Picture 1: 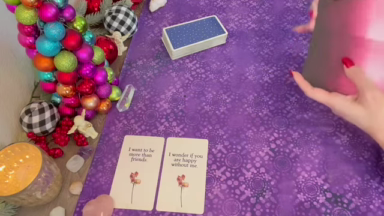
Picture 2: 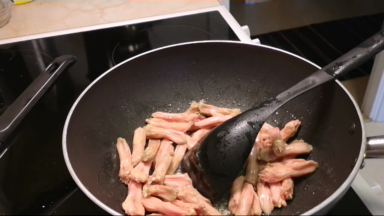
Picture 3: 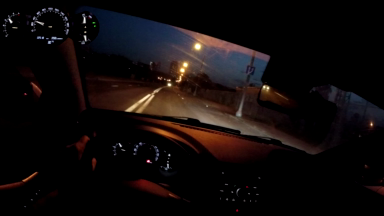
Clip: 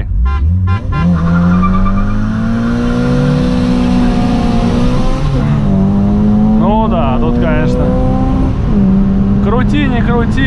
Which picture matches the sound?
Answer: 3